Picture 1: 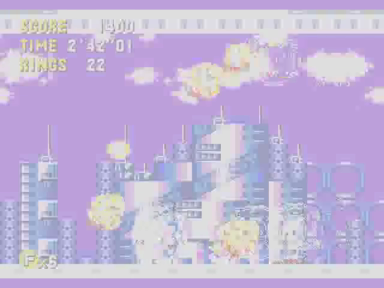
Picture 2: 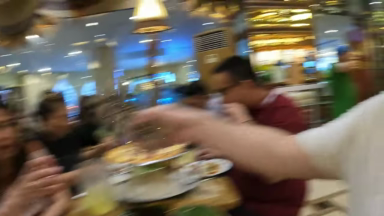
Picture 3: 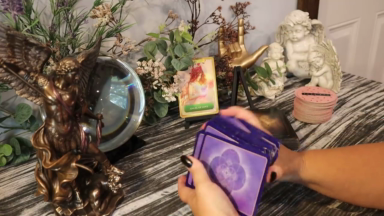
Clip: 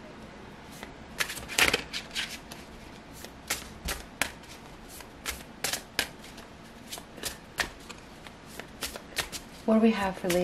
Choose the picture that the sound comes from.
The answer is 3